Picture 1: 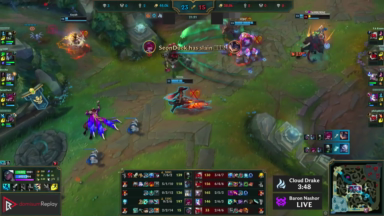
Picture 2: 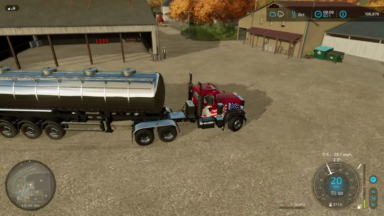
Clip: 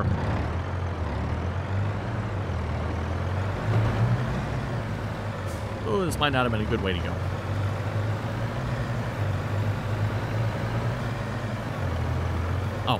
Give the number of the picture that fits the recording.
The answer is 2